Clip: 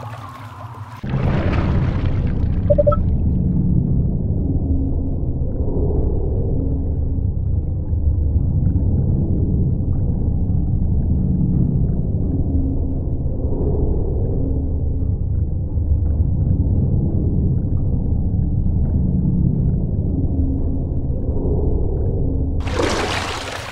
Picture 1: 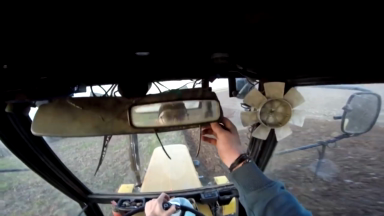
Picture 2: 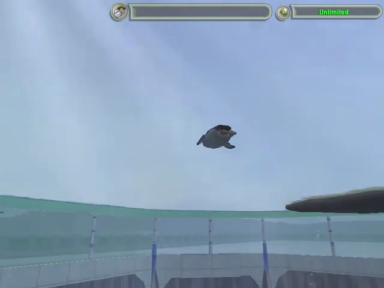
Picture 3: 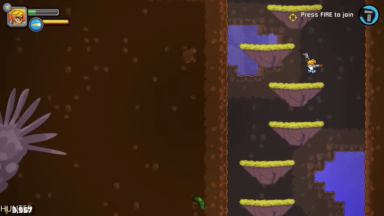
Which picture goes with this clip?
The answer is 2